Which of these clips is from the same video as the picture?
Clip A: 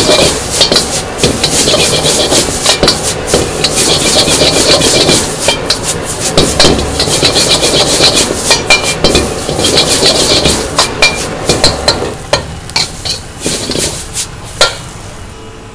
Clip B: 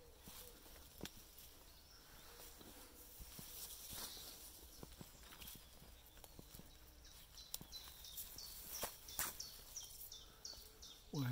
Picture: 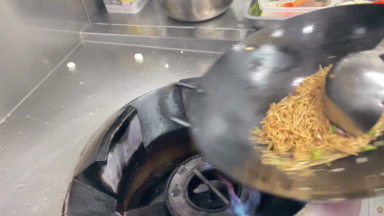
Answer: A